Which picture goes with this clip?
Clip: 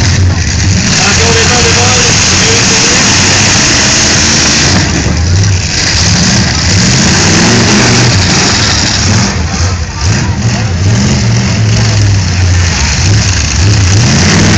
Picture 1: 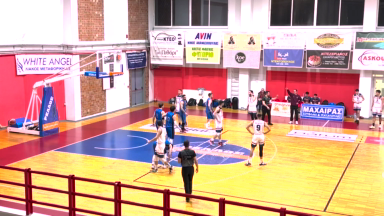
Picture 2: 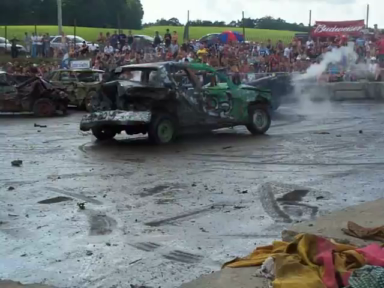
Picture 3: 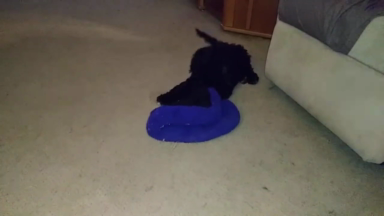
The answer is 2